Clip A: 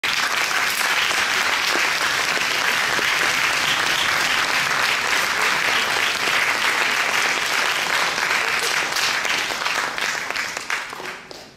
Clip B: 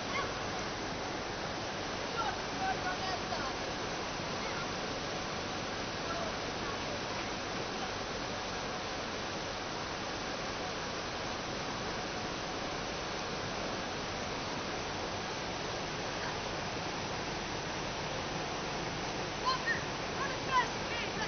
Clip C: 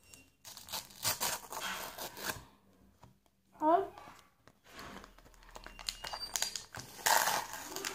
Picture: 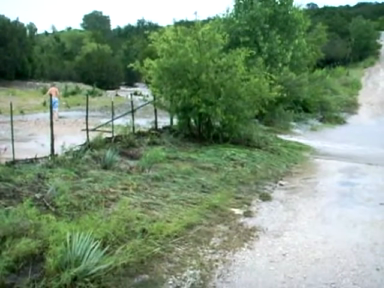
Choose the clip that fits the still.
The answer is B